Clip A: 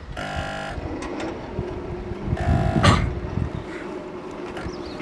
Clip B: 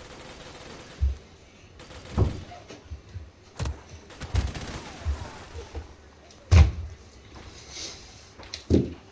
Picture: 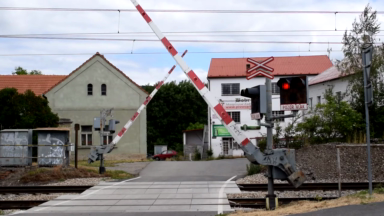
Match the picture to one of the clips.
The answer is A